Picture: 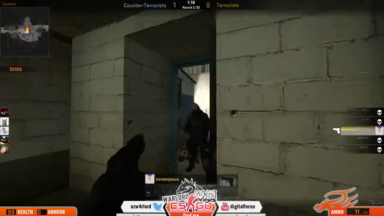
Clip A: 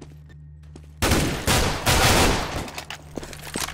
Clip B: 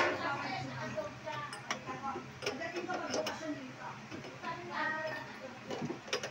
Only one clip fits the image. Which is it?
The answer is A